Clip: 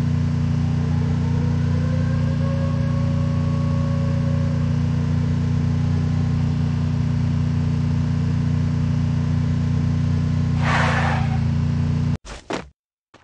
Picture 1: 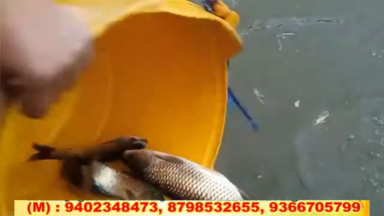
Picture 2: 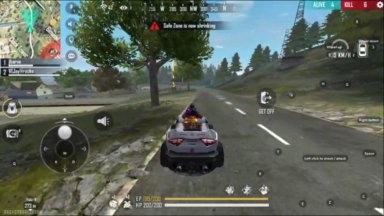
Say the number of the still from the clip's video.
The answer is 2